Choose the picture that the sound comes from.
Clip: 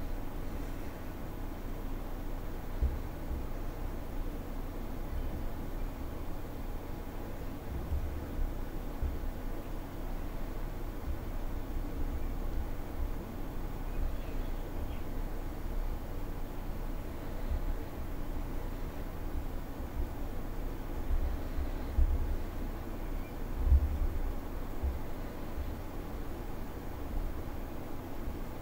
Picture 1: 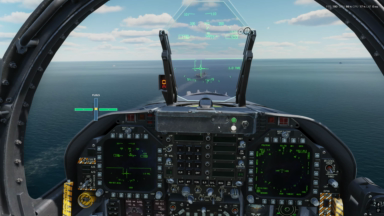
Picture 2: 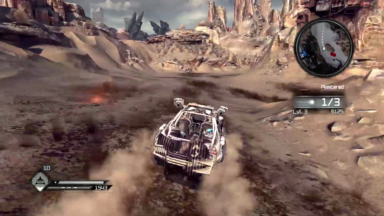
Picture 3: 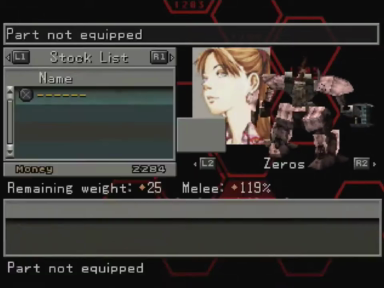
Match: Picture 1